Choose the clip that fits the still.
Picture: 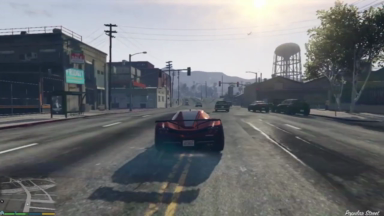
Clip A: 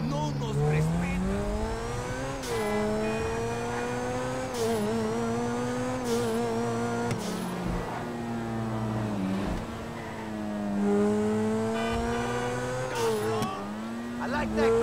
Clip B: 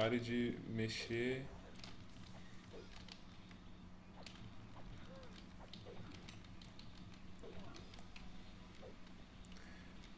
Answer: A